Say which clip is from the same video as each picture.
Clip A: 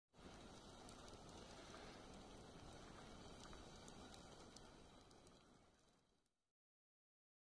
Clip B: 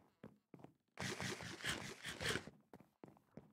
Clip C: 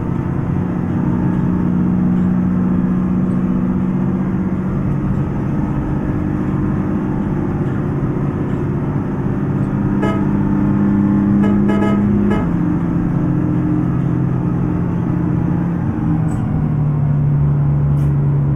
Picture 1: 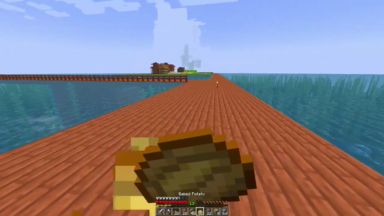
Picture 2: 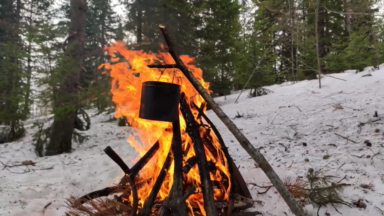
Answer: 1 B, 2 A